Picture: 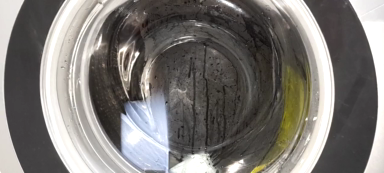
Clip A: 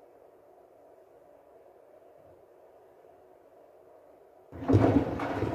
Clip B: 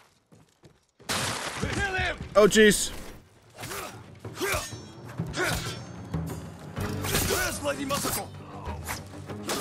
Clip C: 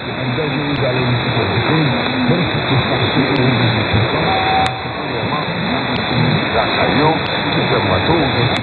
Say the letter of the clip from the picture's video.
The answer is A